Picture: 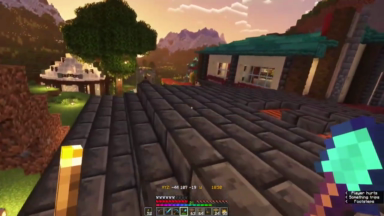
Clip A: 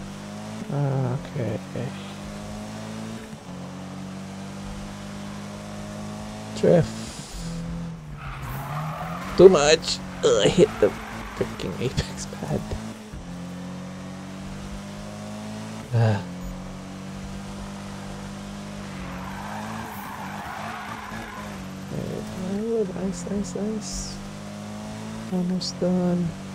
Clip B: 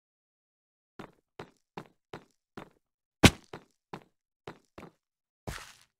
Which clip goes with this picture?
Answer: B